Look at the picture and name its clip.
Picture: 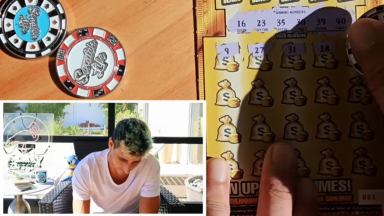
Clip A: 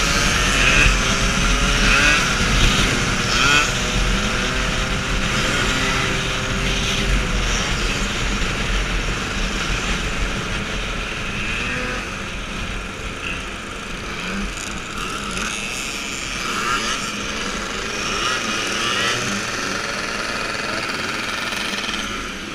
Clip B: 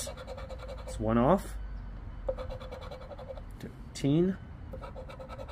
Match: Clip B